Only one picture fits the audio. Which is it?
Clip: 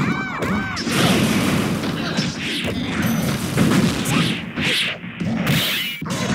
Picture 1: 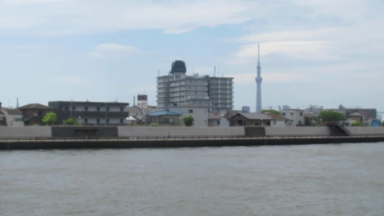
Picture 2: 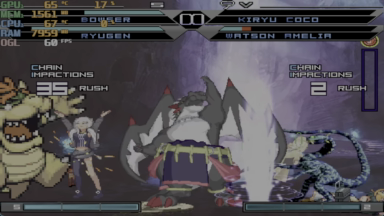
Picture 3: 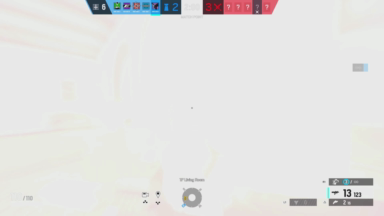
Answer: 2